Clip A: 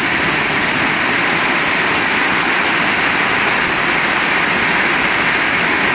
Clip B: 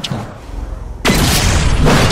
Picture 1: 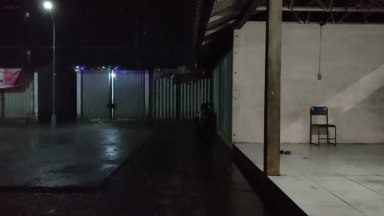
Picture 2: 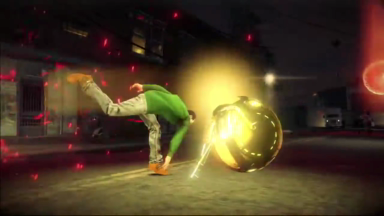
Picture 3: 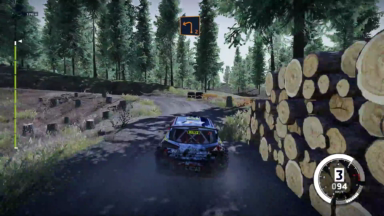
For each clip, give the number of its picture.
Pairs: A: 1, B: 2